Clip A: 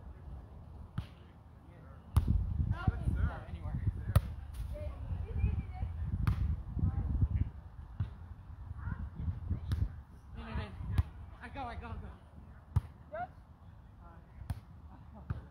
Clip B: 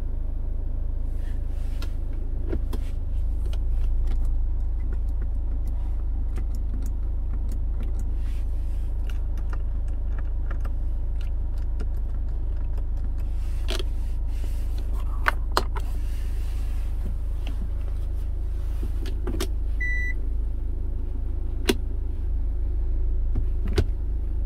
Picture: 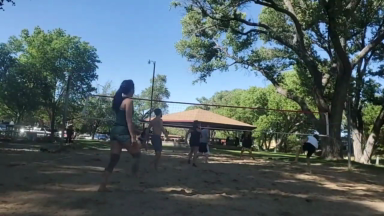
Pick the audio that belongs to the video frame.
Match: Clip A